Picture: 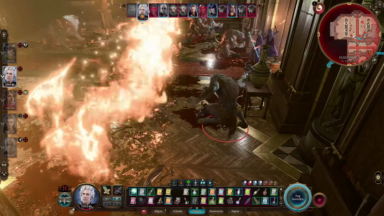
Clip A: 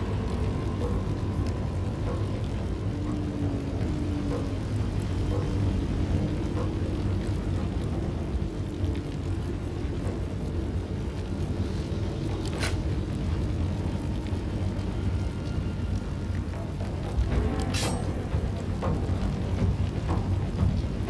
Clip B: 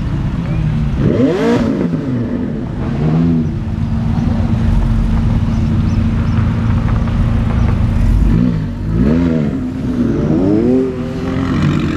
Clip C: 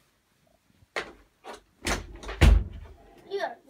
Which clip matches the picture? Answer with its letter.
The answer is A